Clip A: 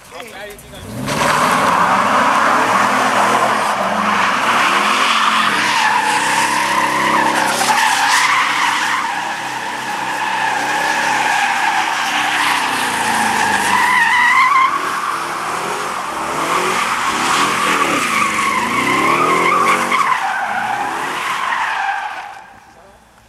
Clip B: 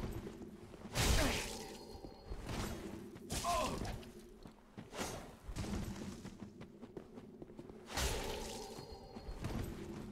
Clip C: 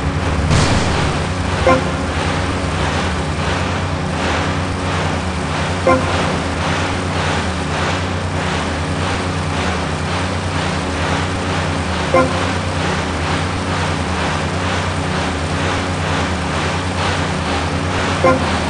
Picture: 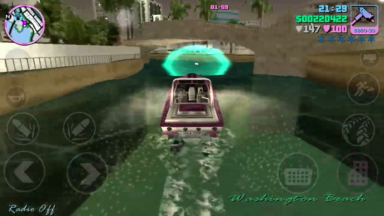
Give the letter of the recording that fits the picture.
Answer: C